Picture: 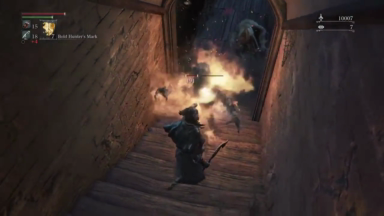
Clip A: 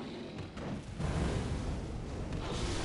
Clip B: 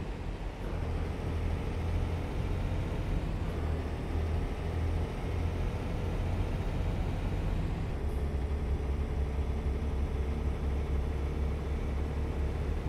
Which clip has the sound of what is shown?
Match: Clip A